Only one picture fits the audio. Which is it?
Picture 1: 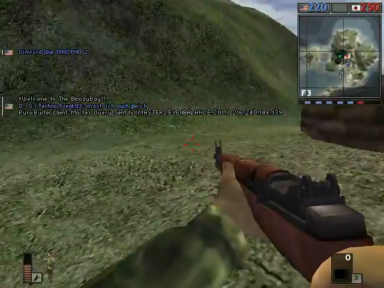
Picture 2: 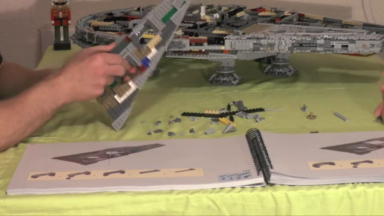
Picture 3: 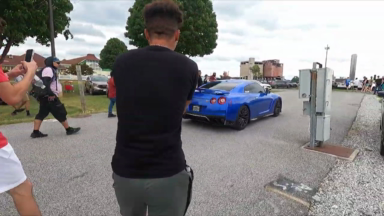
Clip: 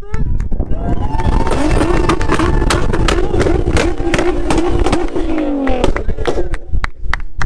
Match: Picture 3